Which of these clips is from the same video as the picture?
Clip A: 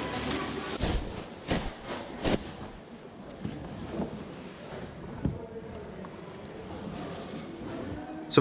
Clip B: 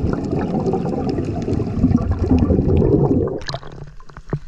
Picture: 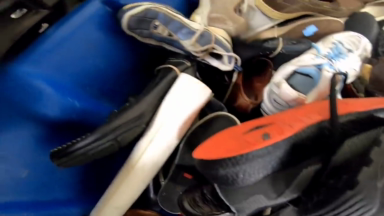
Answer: A